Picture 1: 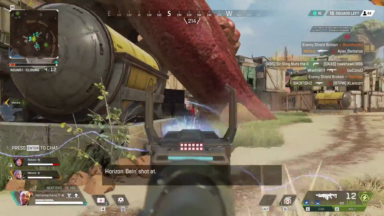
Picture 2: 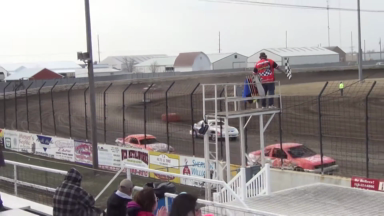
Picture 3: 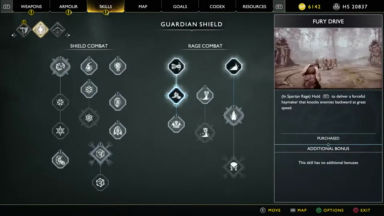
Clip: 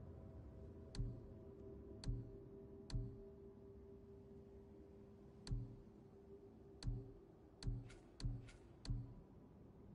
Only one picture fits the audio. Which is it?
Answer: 3